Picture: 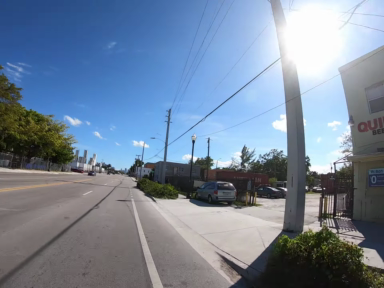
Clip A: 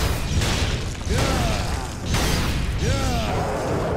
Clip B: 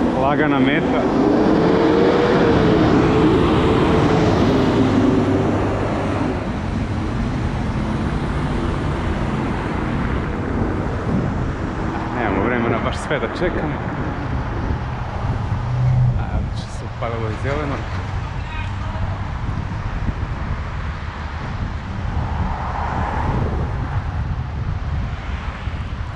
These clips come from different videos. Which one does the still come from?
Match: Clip B